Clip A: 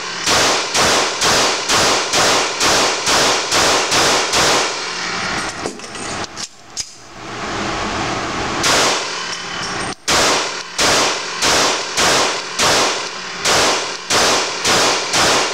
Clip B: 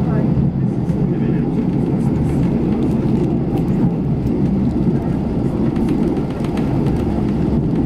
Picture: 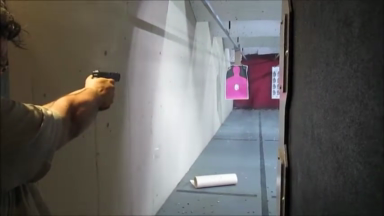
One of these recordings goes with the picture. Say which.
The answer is A